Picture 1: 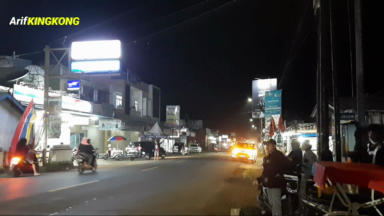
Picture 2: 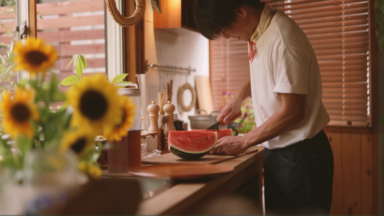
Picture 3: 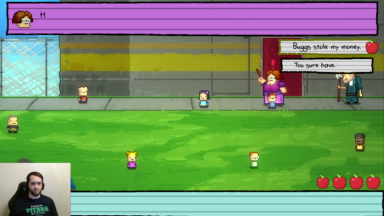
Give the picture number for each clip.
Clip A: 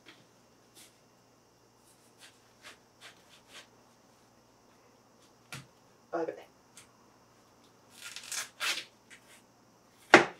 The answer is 2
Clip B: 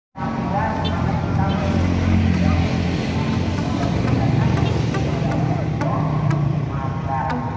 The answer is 1